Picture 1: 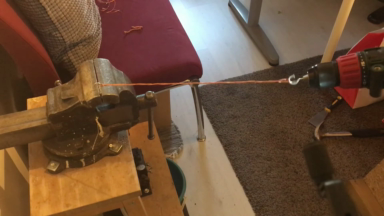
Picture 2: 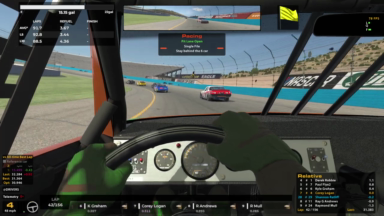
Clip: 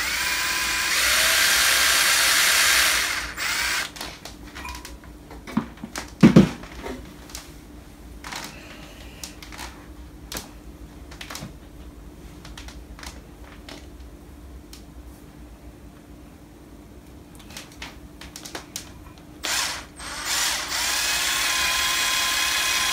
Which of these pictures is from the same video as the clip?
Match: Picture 1